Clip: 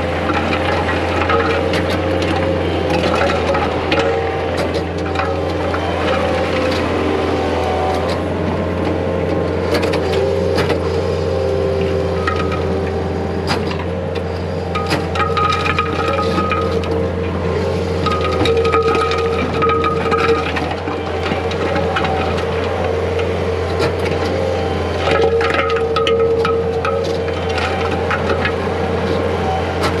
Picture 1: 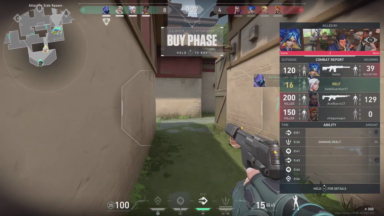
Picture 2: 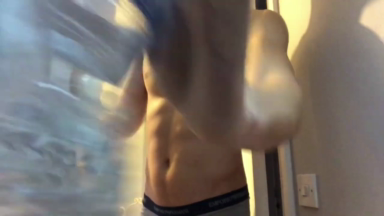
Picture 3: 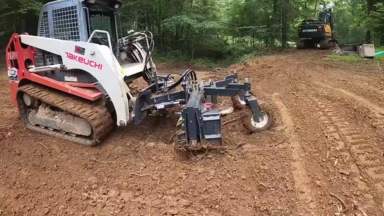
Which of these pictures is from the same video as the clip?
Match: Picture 3